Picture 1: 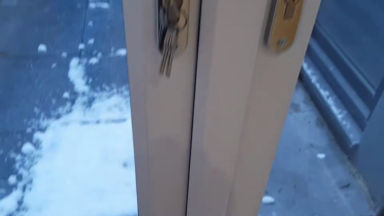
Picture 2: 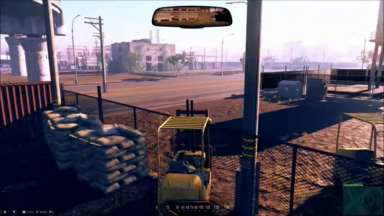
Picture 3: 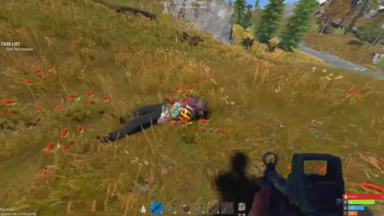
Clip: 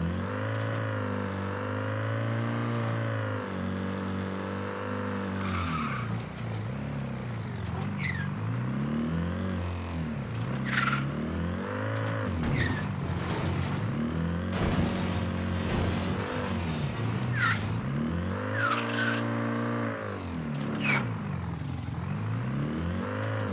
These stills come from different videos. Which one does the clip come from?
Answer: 2